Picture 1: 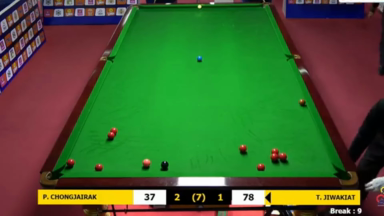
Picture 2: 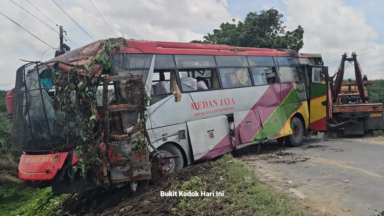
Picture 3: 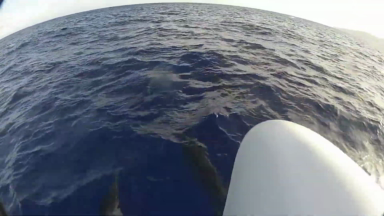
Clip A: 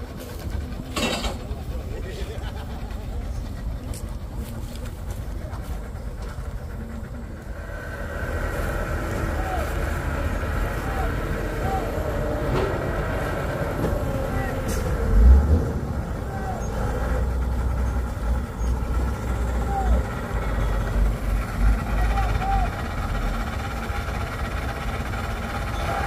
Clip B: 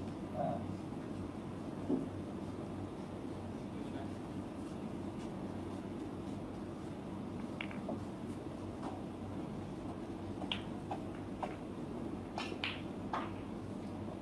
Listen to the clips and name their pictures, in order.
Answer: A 2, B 1